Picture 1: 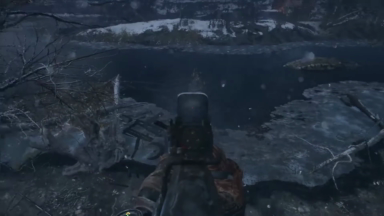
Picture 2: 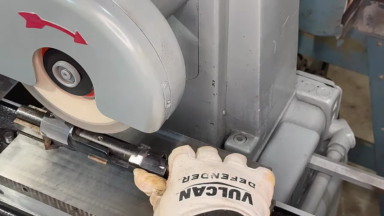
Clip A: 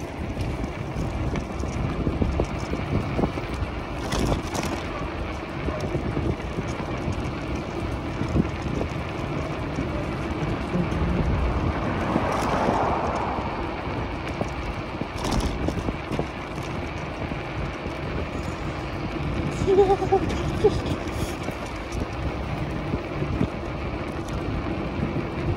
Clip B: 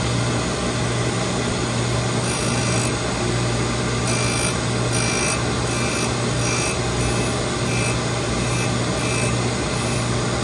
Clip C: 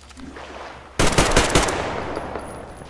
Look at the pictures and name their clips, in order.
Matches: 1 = C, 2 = B